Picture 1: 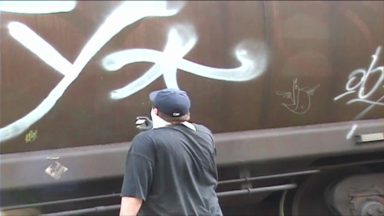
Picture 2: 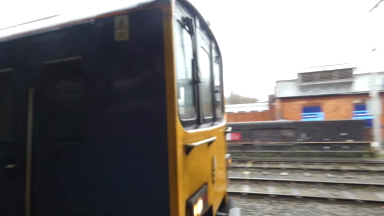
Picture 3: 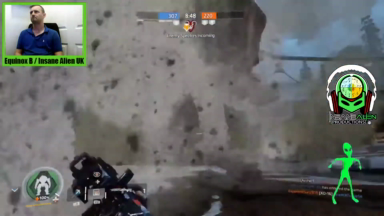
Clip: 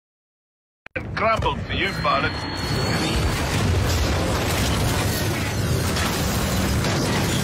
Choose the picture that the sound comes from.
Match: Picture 3